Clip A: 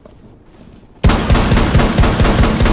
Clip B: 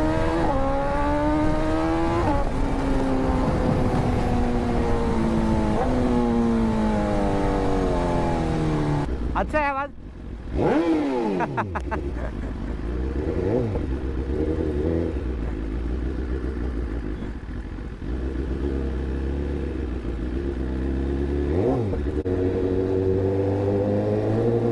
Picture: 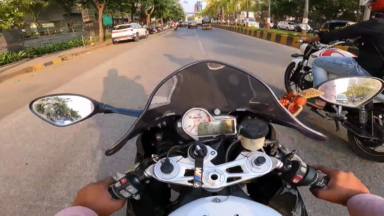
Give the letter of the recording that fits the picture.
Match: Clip B